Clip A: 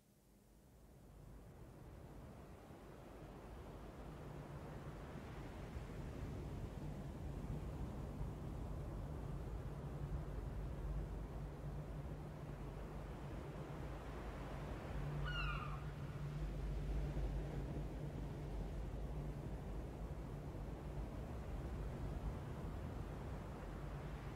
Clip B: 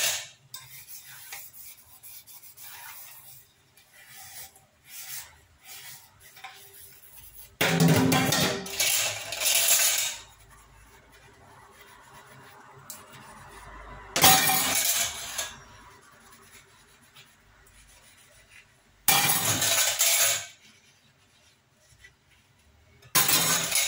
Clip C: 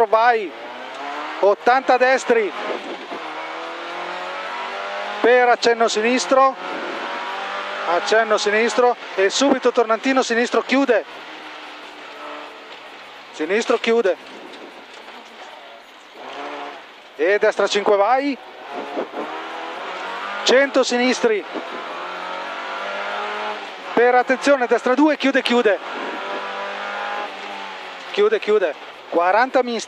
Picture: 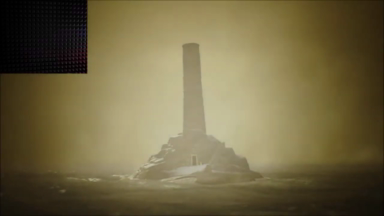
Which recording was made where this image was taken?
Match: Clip A